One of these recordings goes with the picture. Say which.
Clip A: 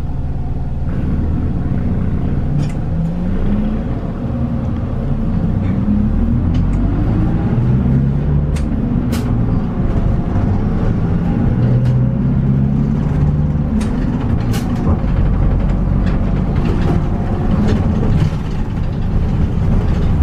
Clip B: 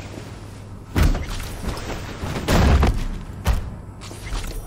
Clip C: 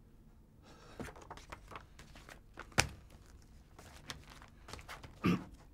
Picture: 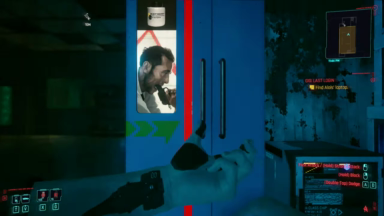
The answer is B